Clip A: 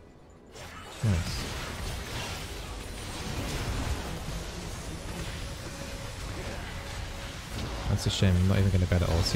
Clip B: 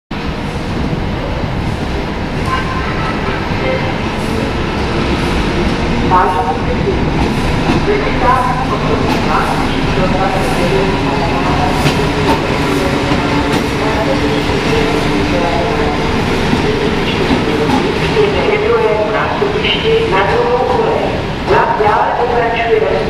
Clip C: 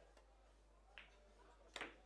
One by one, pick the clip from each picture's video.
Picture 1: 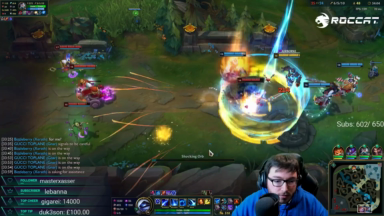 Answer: A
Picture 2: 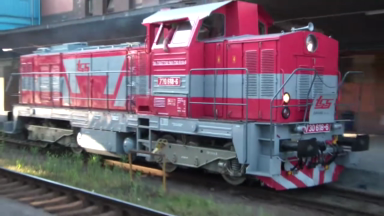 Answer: B